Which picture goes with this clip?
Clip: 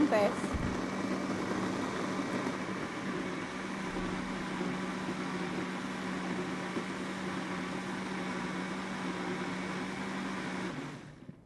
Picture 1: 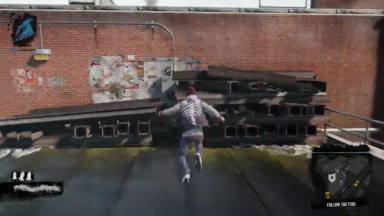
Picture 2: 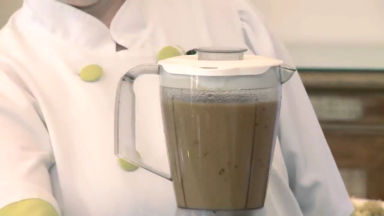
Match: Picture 2